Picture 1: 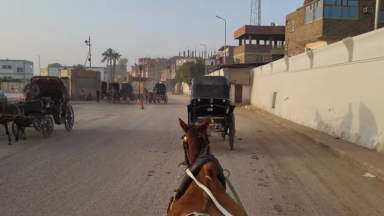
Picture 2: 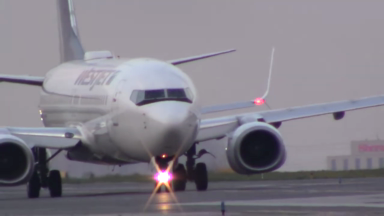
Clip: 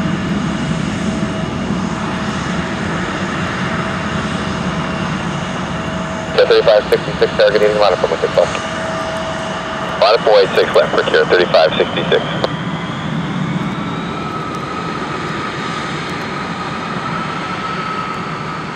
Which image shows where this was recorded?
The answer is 2